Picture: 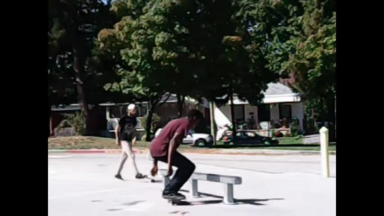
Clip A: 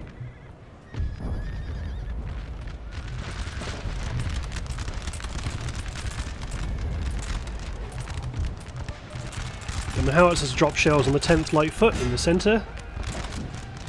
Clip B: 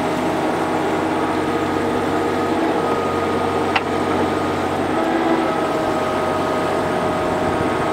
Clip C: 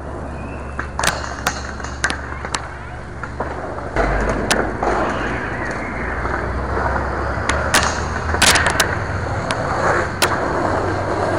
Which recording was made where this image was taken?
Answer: C